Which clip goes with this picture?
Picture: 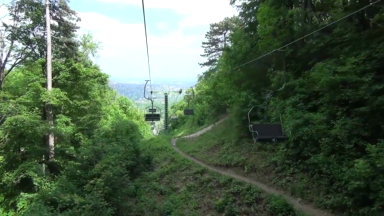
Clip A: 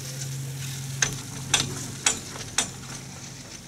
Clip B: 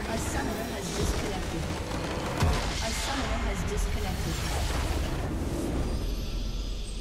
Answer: A